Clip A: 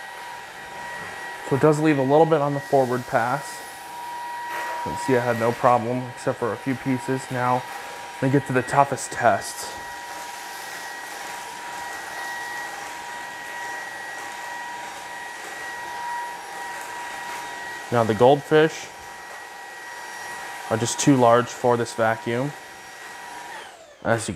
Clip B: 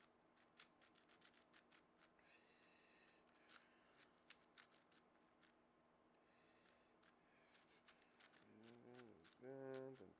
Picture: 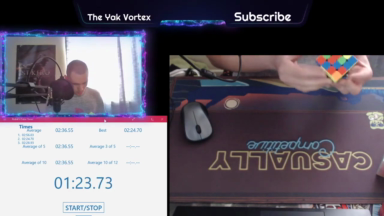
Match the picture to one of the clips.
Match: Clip B